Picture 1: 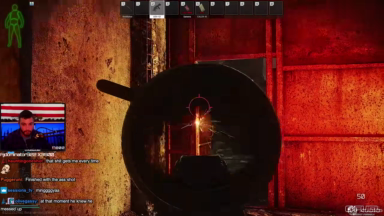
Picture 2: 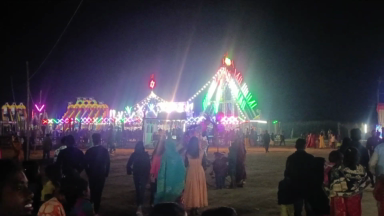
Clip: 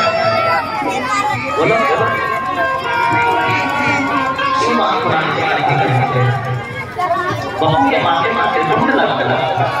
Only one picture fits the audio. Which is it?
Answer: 2